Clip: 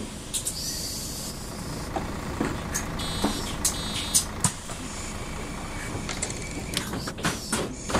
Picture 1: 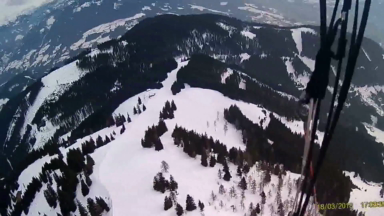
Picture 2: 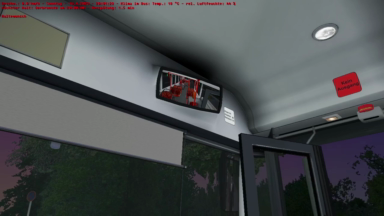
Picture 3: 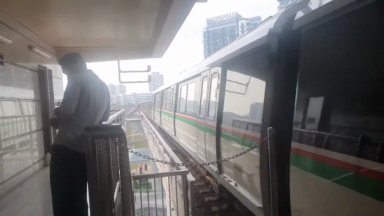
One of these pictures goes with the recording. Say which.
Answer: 2